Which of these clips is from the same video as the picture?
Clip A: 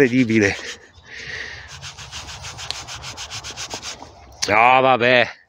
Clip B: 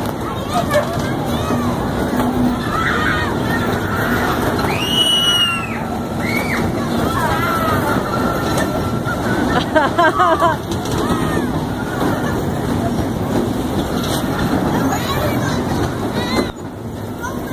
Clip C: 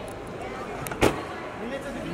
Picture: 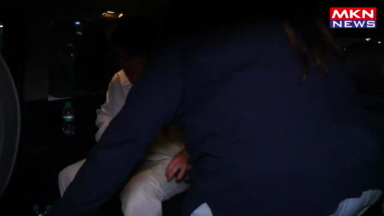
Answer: C